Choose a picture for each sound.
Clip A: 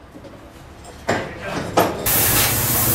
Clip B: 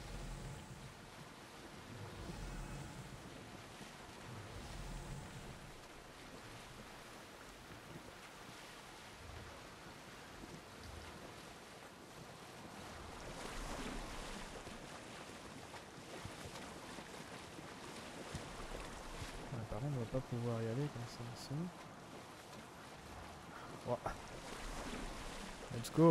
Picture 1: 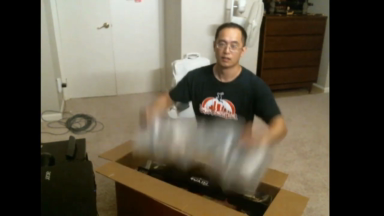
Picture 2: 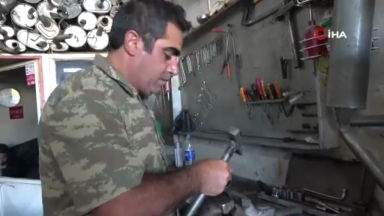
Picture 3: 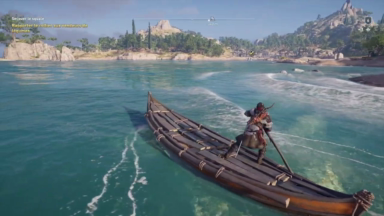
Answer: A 2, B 3